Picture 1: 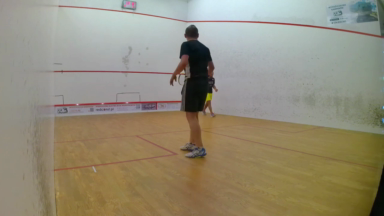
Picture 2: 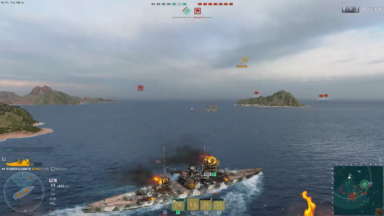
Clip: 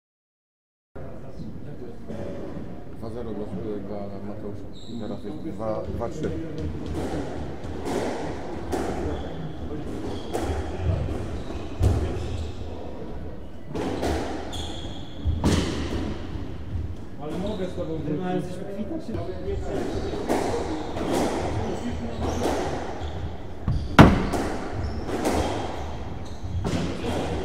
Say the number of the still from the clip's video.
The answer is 1